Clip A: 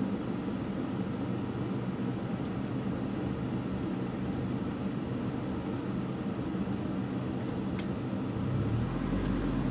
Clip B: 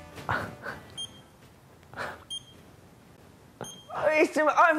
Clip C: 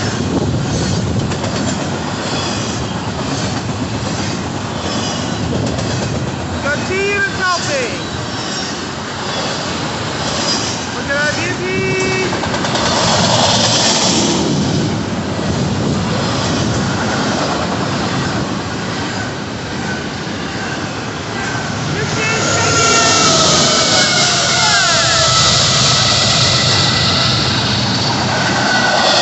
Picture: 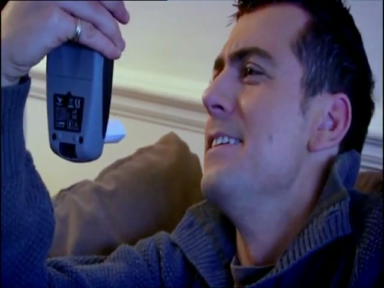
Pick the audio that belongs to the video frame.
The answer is B